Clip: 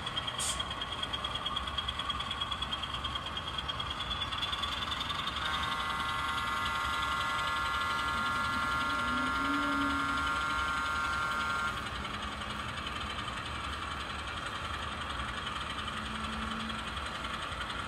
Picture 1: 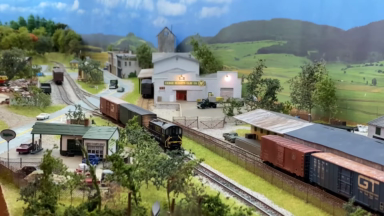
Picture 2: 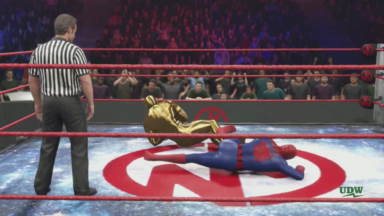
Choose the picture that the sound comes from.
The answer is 1